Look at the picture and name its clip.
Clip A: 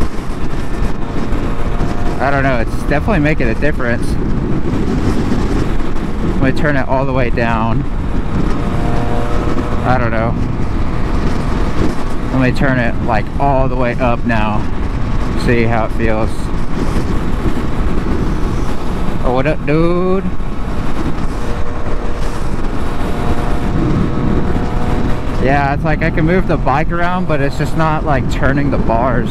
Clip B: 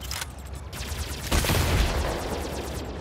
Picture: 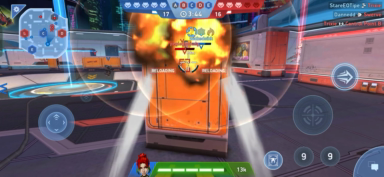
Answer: B